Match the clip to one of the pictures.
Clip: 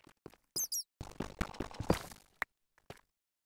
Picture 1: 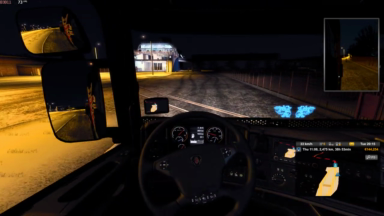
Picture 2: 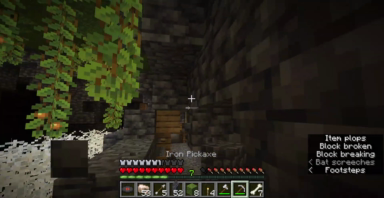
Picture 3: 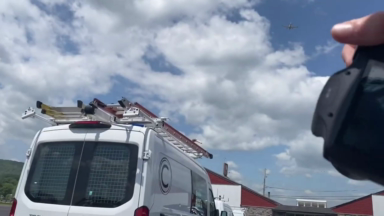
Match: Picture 2